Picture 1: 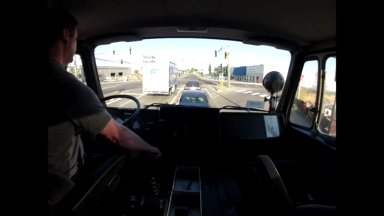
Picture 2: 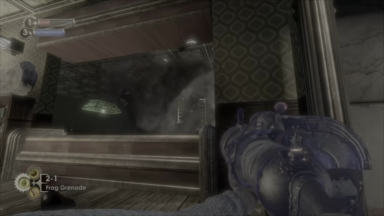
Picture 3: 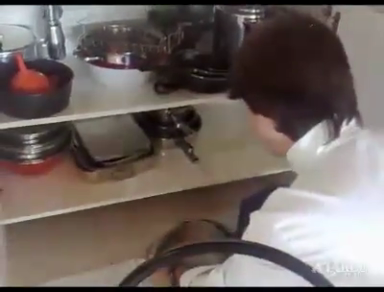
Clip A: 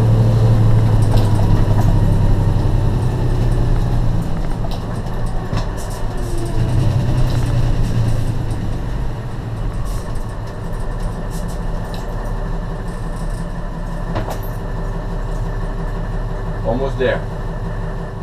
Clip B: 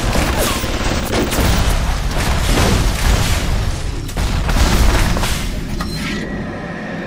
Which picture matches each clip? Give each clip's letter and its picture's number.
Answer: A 1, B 2